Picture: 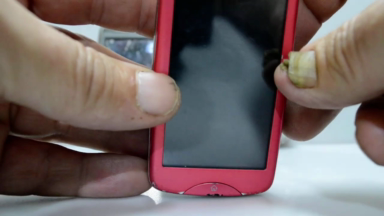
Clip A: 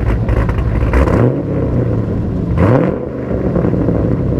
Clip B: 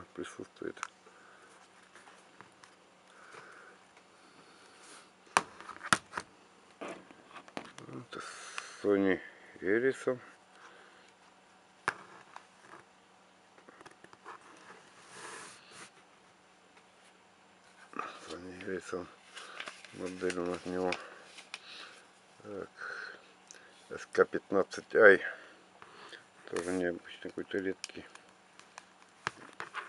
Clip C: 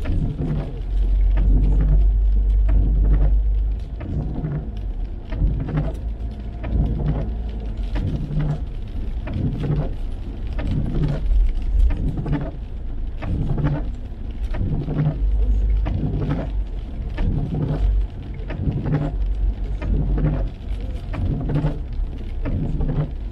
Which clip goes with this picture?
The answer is B